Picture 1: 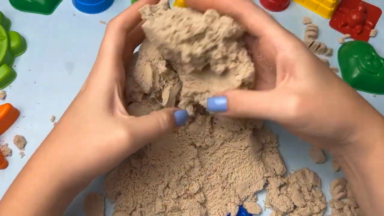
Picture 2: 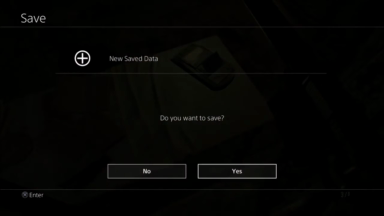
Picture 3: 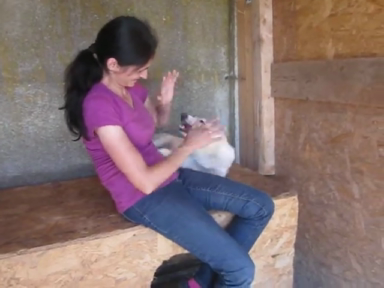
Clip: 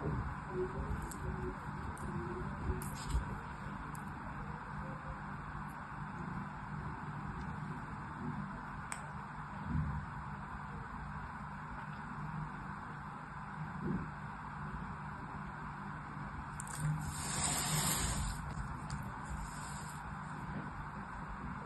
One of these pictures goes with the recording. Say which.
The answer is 1